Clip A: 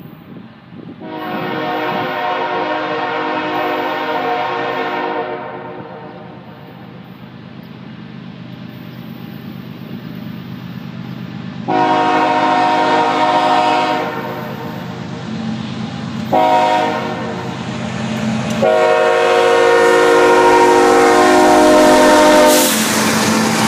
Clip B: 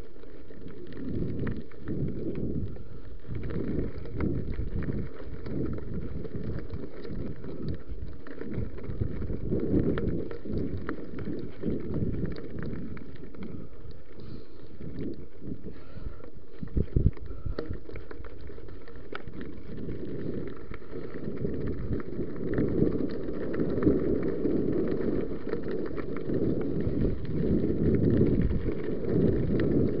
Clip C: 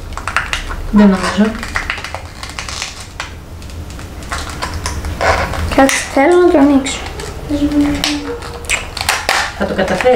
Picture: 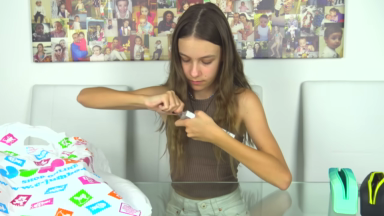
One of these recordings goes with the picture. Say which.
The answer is C